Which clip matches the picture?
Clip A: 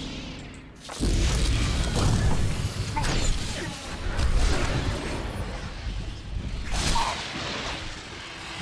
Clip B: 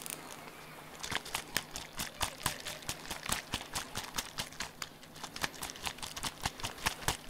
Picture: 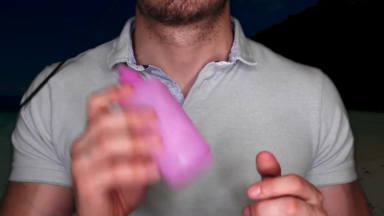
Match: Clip B